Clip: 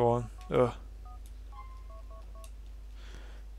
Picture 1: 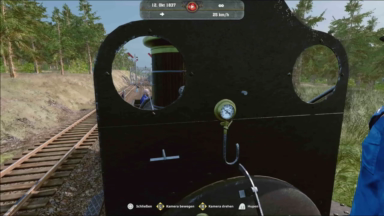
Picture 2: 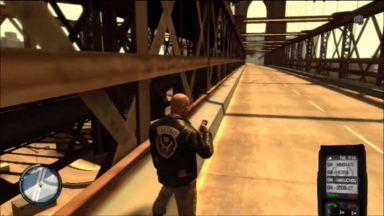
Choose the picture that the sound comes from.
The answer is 2